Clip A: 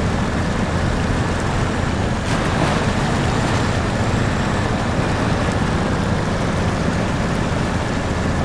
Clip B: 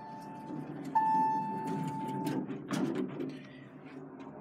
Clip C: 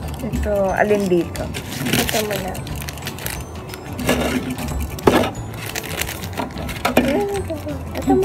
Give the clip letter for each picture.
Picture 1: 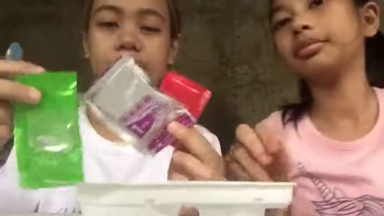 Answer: C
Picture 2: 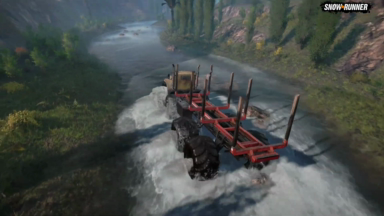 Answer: A